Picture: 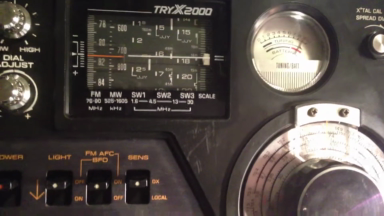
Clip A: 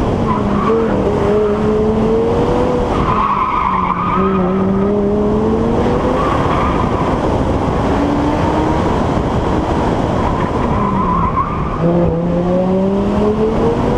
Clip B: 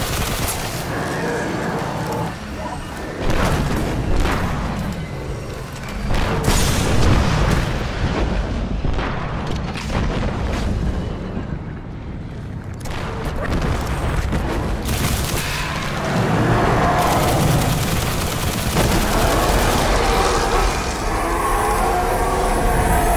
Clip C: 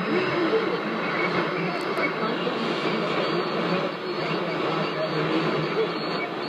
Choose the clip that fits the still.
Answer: C